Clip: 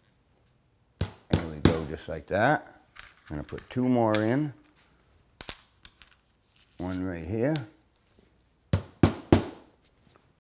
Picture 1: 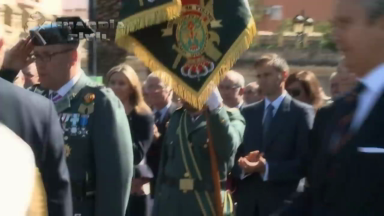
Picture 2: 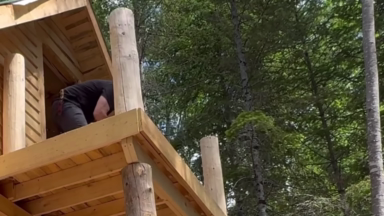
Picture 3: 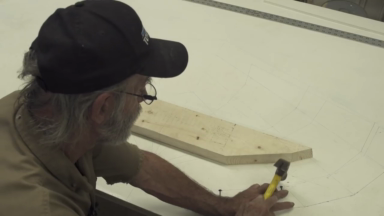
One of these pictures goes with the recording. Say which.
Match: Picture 3